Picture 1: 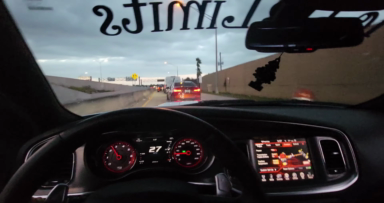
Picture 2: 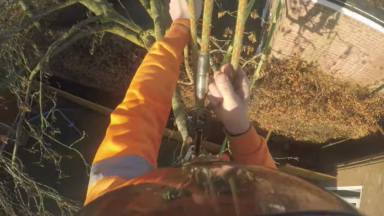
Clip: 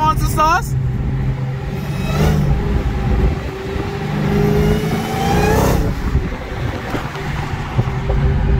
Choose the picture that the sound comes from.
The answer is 1